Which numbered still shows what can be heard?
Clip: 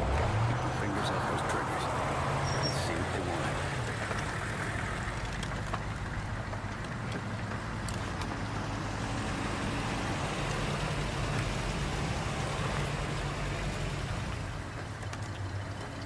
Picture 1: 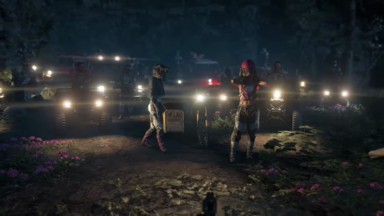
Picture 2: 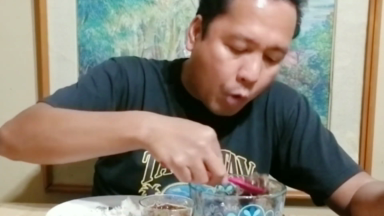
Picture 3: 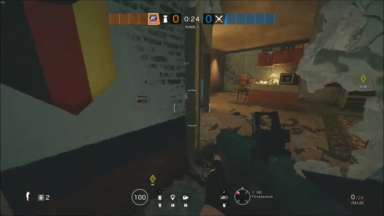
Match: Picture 1